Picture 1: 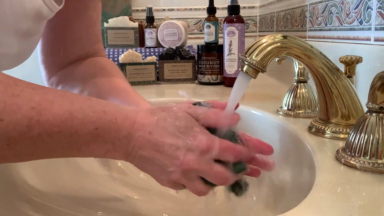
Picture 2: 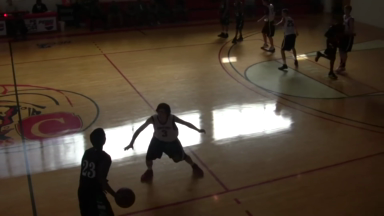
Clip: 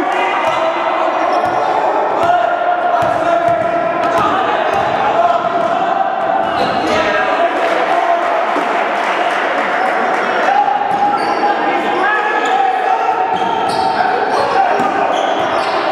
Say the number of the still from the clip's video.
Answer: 2